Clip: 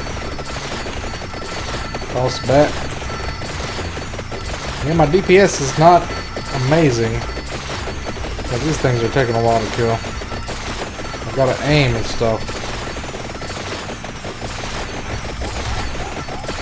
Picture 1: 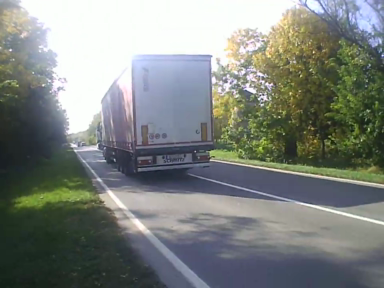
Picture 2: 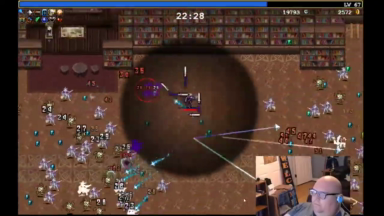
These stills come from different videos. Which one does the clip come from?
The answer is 2